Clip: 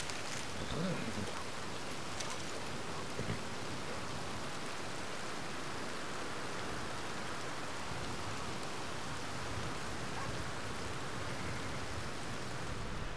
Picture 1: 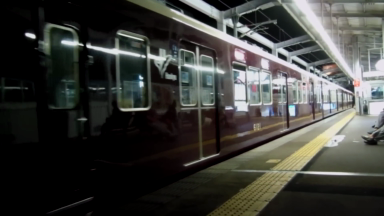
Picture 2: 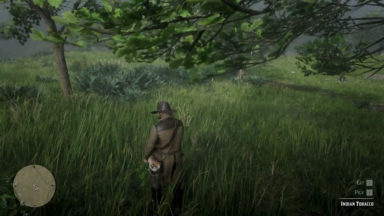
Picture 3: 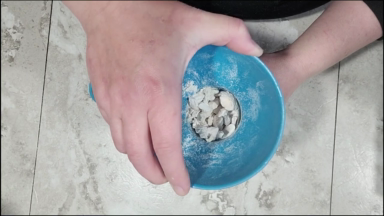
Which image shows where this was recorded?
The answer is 2